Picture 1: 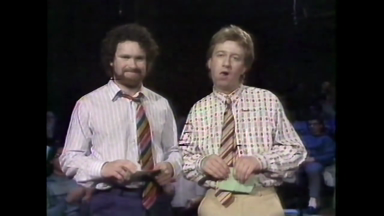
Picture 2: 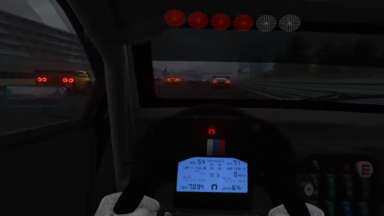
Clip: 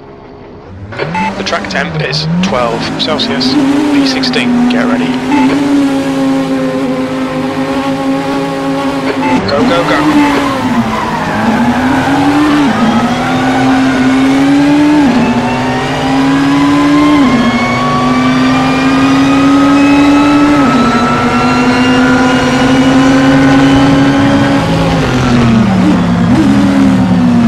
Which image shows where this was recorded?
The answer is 2